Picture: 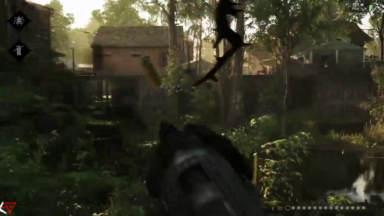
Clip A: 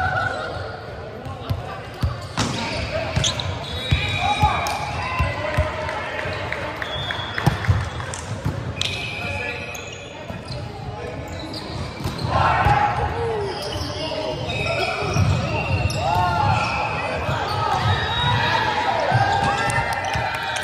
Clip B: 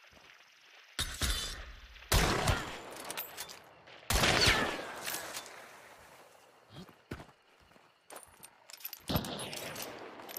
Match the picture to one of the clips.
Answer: B